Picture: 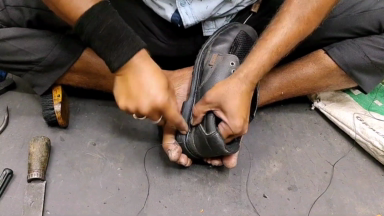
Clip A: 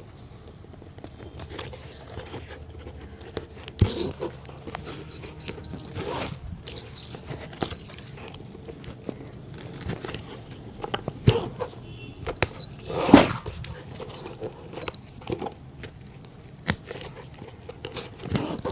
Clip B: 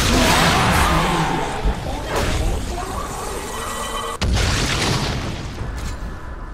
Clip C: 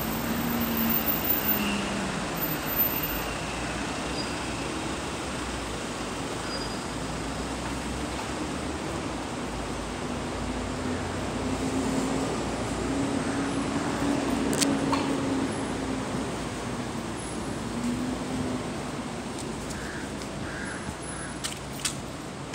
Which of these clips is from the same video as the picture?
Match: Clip A